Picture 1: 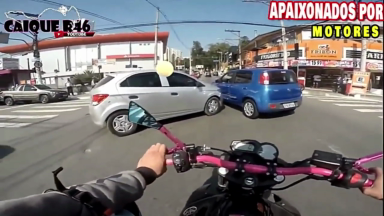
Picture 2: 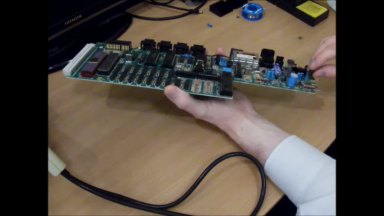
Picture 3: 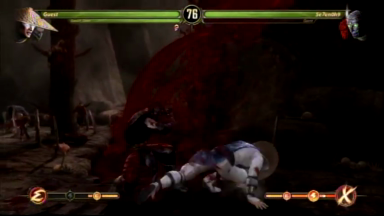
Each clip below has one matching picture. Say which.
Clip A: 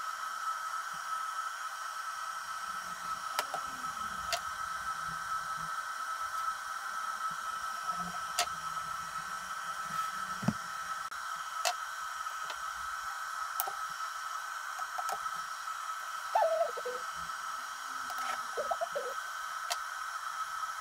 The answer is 2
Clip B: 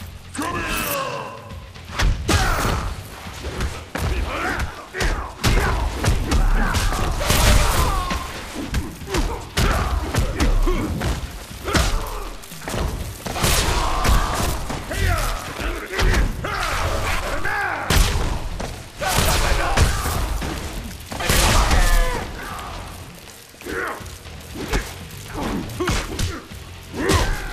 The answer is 3